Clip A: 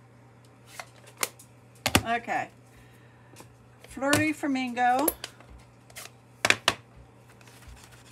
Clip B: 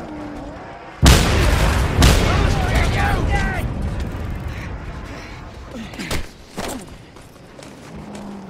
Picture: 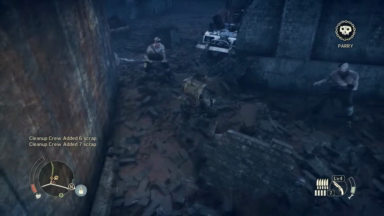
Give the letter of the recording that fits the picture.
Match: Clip B